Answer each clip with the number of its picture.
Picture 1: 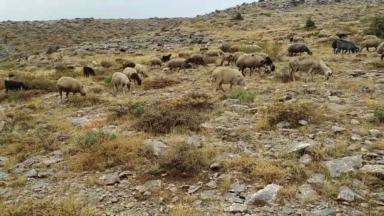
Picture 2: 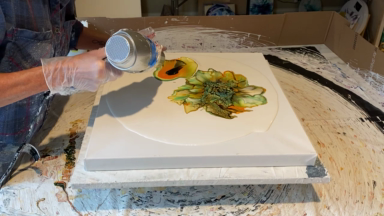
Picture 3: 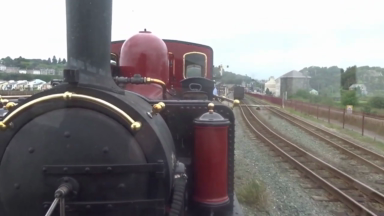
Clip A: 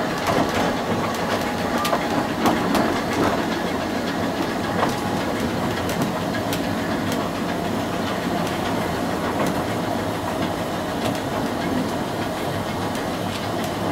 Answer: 3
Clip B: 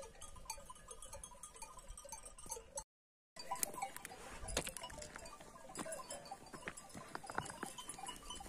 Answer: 1